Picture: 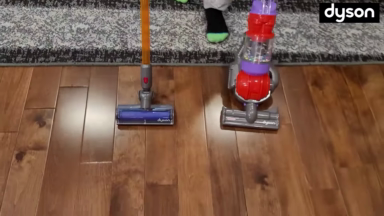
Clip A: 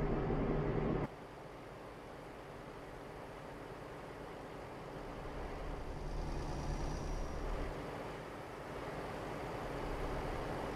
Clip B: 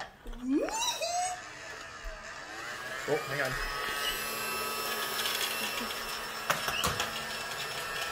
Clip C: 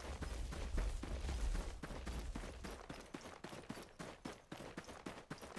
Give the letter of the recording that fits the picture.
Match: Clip B